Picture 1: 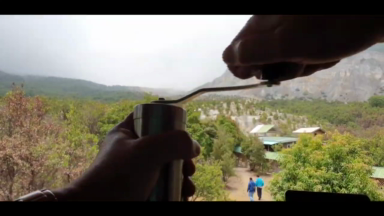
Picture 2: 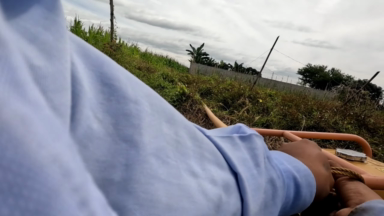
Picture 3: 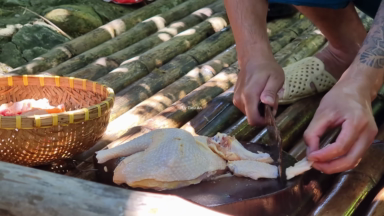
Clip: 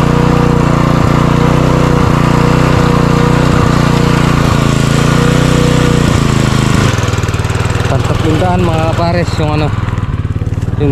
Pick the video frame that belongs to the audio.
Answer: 2